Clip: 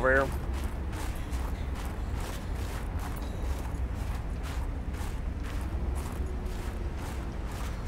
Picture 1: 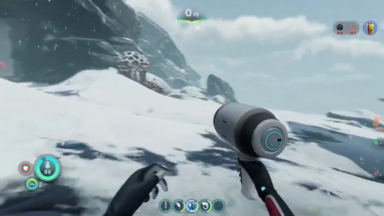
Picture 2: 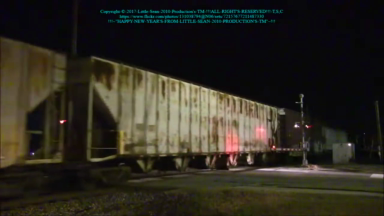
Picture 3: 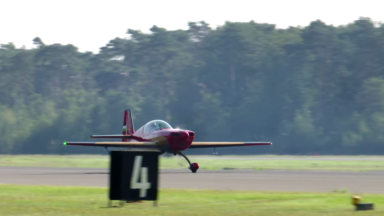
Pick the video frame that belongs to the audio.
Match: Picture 1